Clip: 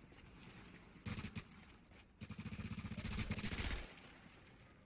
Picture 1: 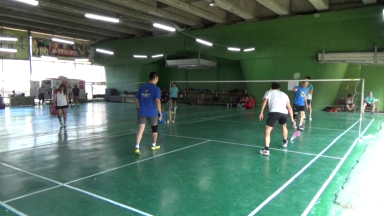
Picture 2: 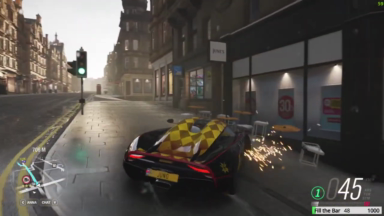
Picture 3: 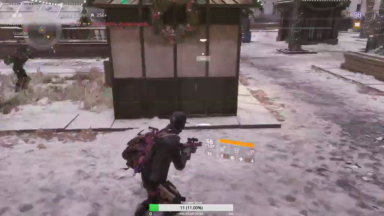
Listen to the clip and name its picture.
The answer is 3